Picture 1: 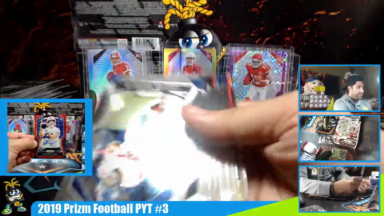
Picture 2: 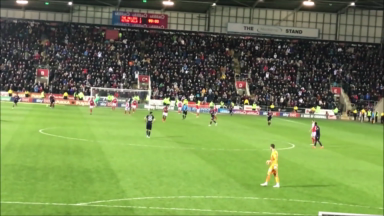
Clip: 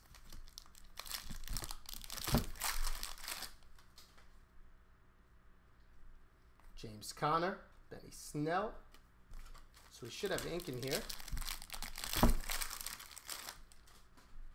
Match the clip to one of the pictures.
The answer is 1